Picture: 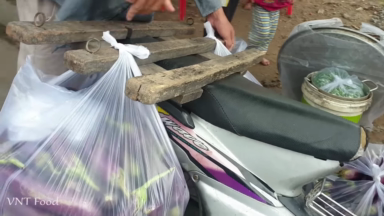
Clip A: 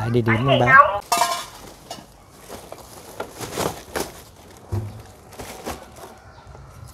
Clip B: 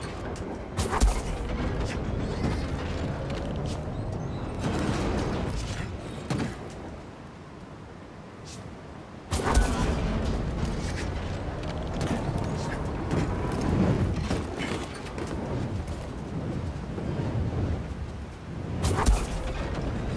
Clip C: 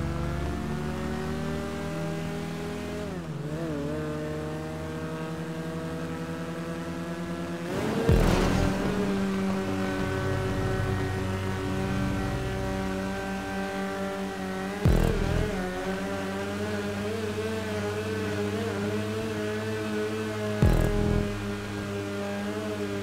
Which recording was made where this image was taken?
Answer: A